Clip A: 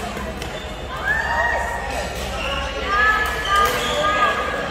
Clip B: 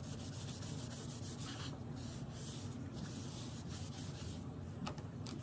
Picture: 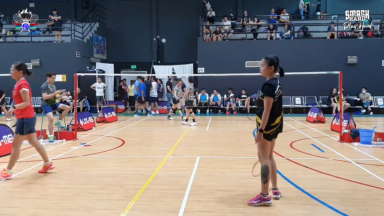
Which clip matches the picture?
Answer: A